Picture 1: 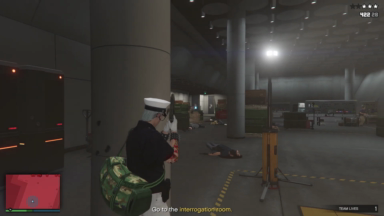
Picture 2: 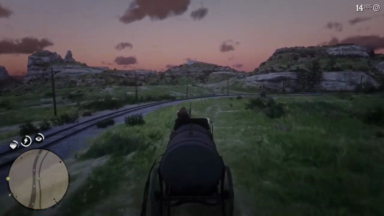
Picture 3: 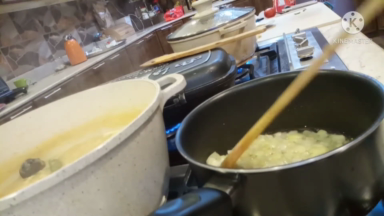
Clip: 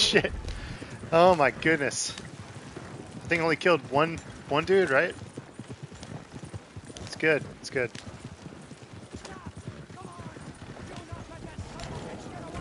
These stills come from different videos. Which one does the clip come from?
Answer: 2